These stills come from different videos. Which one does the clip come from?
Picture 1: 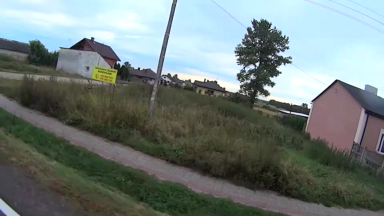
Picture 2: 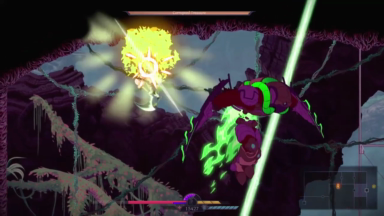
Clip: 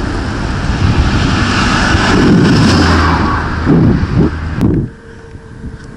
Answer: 1